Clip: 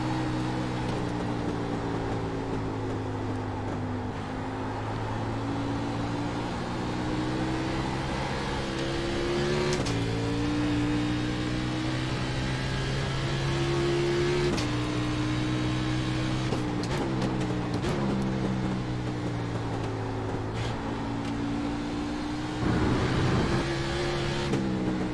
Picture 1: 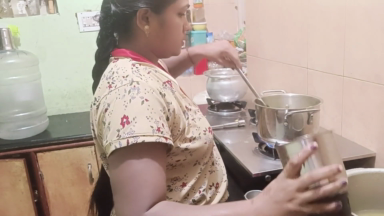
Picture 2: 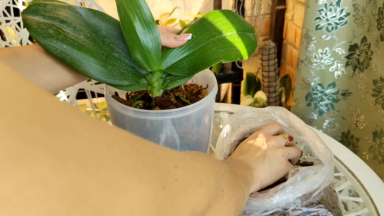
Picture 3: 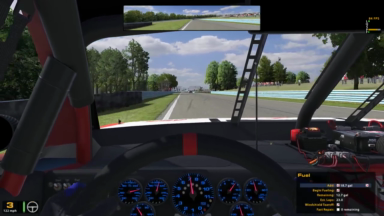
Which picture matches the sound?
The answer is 3